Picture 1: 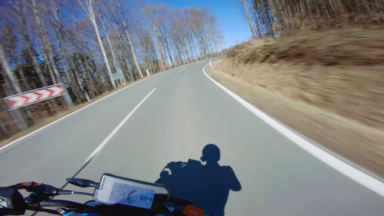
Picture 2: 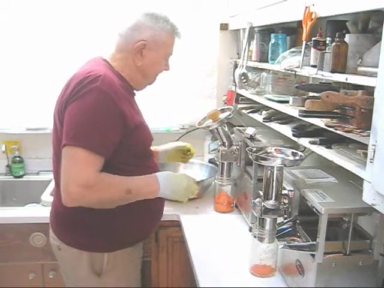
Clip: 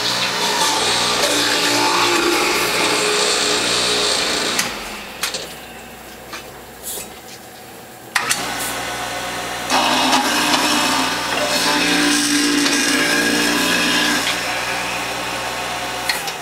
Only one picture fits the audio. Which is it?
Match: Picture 2